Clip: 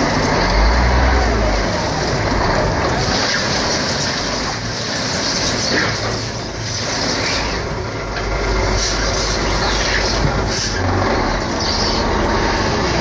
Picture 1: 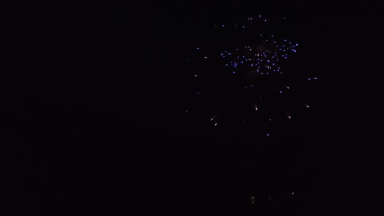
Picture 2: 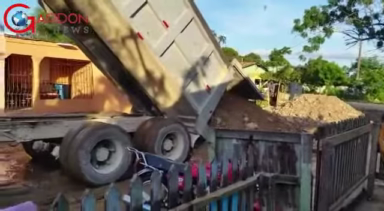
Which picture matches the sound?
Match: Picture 2